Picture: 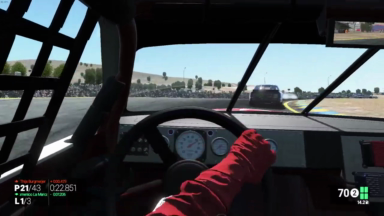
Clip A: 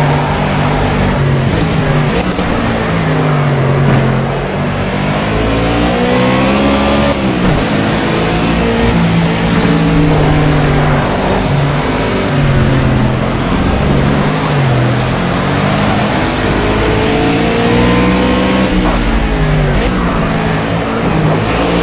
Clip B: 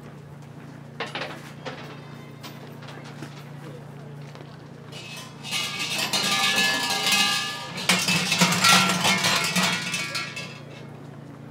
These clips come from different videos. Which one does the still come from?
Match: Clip A